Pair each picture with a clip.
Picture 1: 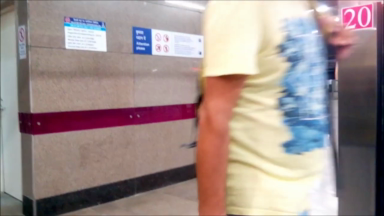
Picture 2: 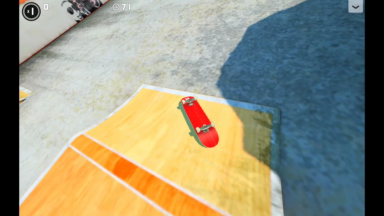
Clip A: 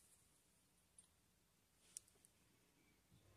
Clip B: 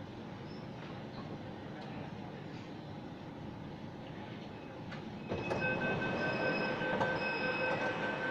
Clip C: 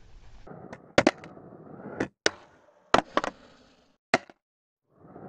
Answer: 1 B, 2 C